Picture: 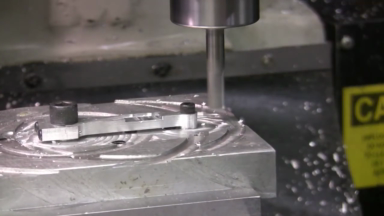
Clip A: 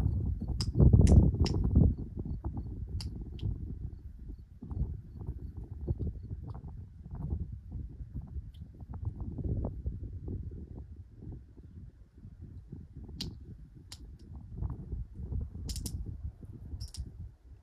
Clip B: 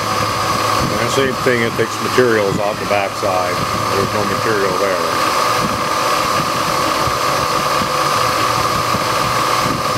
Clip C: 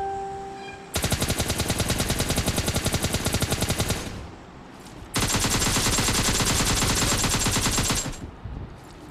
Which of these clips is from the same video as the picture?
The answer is B